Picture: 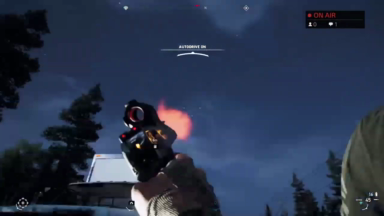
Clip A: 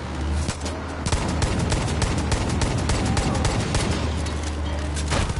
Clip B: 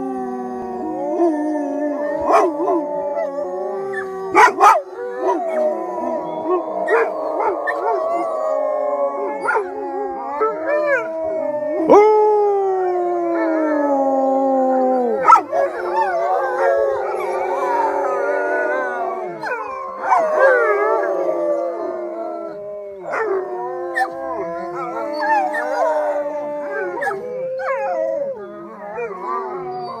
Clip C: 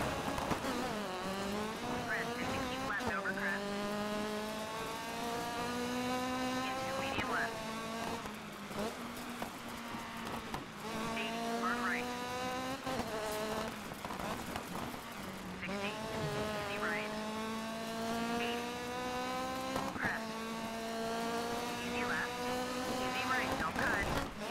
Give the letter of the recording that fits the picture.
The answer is A